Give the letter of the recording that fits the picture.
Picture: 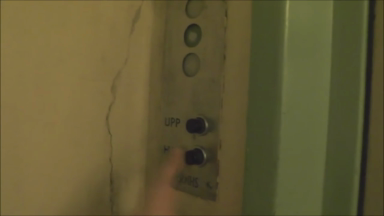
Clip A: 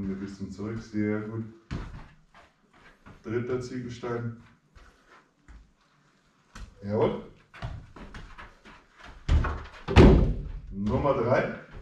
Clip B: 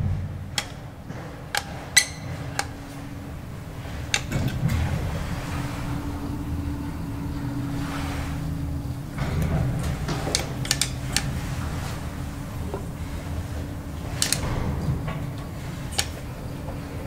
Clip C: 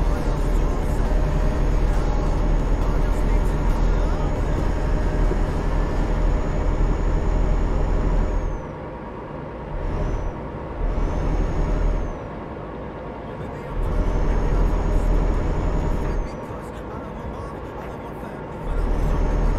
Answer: B